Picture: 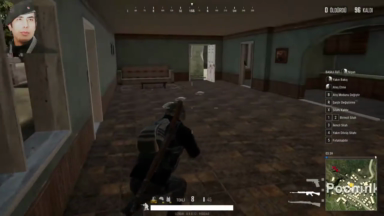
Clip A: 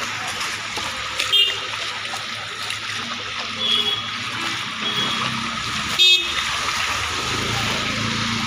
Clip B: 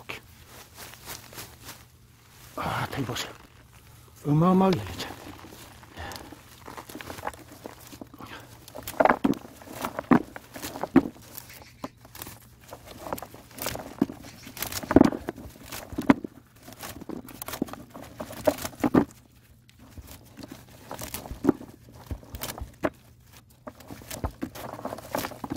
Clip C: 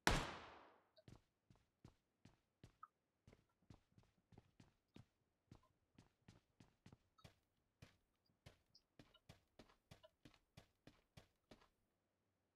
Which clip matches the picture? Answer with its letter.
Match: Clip C